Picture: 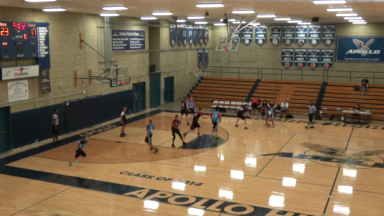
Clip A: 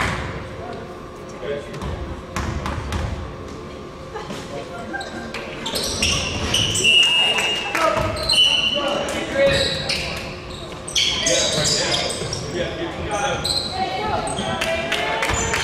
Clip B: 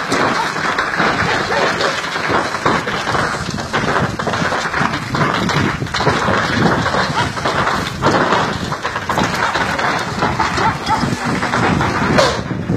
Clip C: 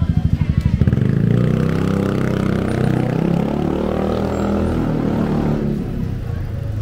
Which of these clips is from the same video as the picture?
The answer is A